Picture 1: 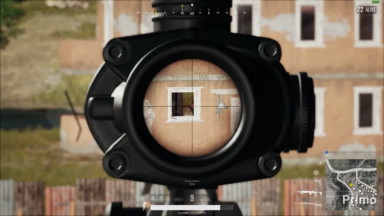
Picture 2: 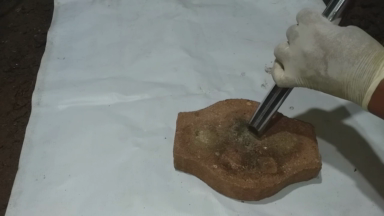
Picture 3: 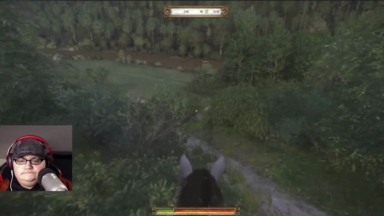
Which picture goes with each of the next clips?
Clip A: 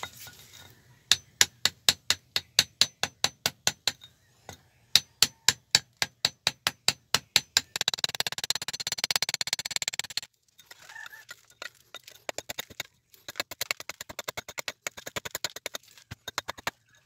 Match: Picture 2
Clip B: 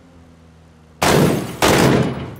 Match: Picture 1